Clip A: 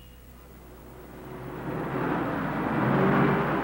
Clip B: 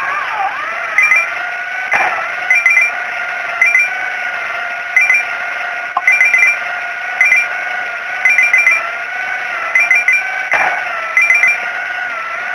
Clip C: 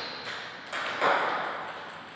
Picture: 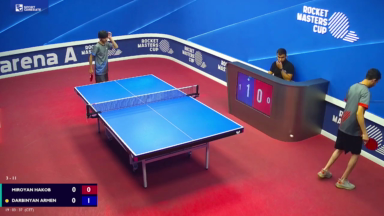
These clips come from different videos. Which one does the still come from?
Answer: C